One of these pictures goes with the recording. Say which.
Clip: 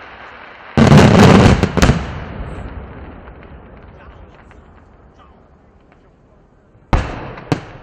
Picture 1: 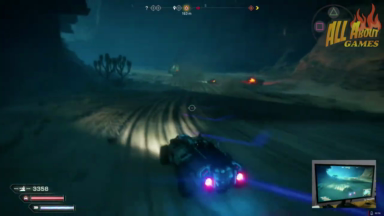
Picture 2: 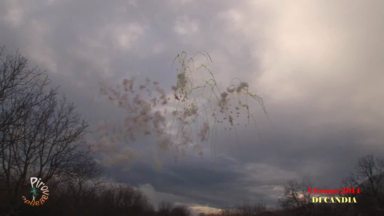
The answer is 2